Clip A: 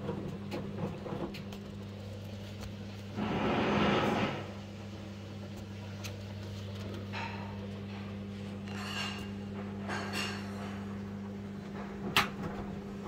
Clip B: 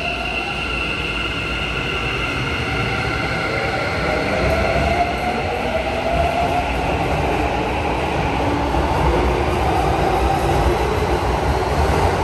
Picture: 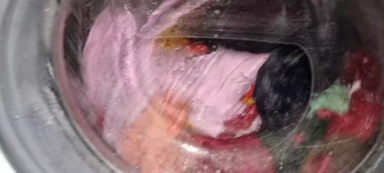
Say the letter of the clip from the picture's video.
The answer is A